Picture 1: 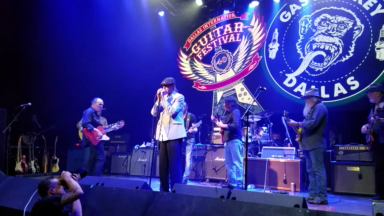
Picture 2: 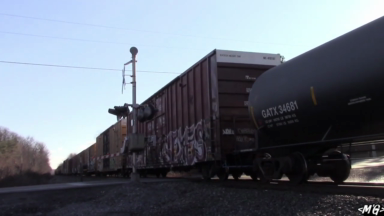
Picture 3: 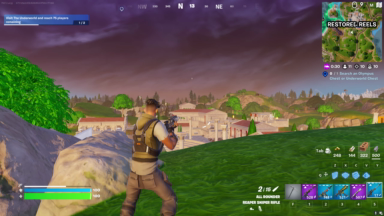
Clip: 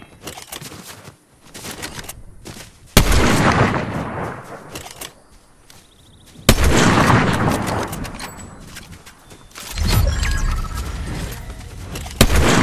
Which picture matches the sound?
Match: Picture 3